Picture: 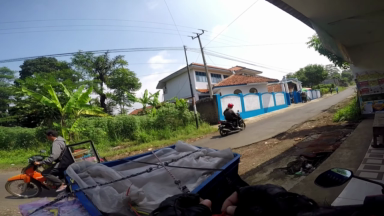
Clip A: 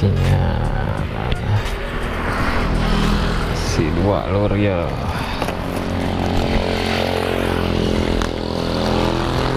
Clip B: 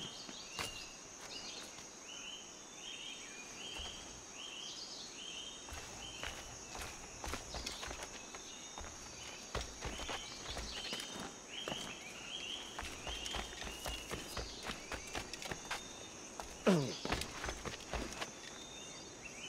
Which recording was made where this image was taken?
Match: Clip A